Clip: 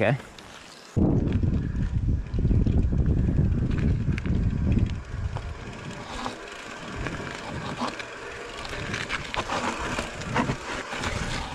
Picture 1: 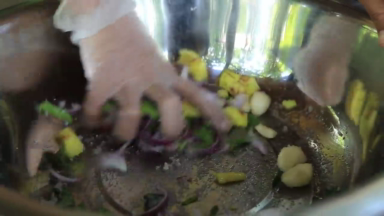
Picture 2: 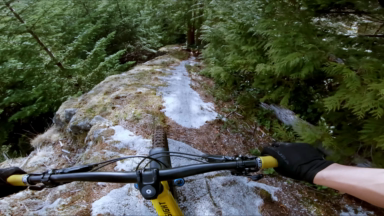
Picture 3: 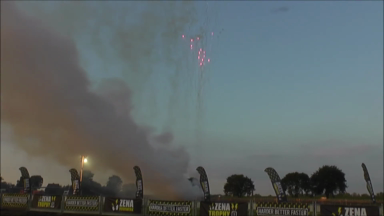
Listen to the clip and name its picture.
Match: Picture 2